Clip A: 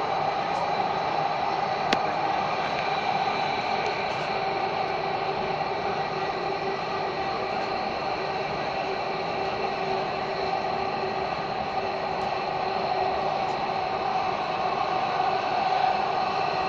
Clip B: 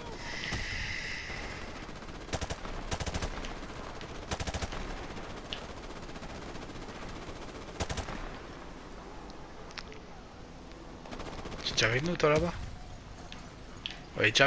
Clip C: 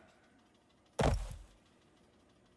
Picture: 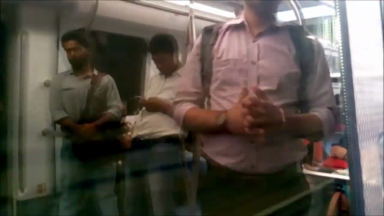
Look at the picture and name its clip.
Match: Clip A